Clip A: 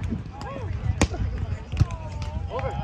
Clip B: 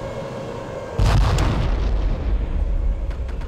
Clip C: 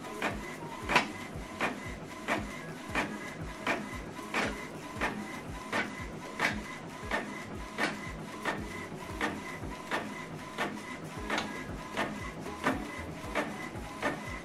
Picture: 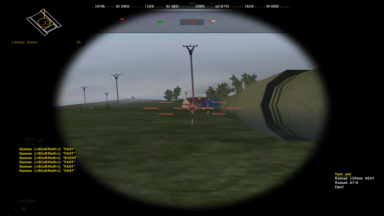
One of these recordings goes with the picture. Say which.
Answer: B